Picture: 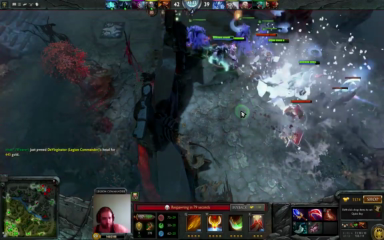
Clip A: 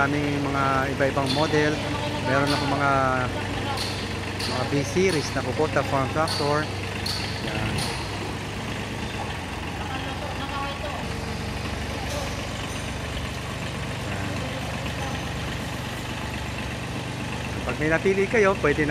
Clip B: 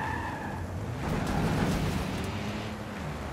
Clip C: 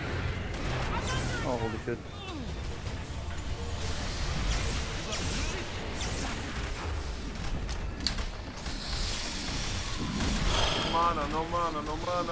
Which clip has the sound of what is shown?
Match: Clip C